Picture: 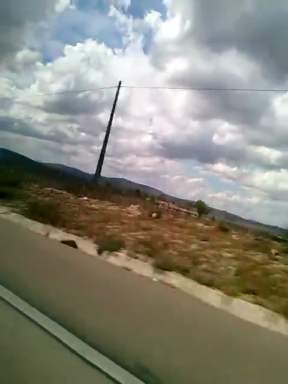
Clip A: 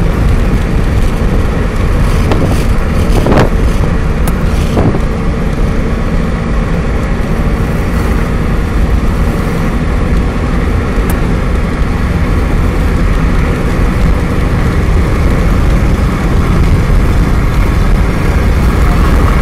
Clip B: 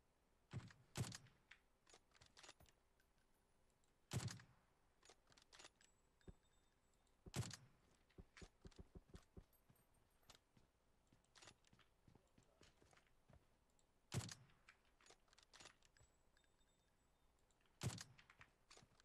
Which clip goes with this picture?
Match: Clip A